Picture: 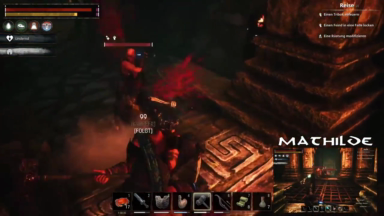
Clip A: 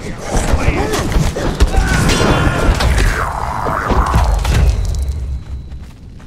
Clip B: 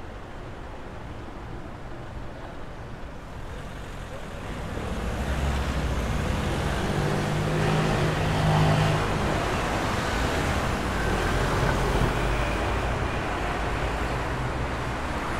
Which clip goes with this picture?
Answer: A